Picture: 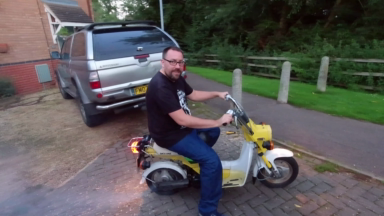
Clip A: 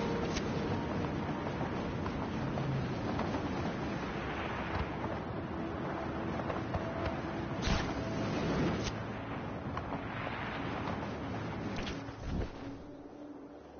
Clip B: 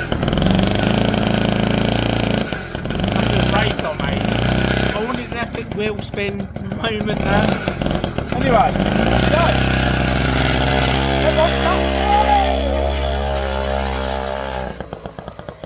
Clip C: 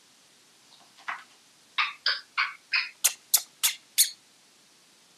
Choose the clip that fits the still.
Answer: B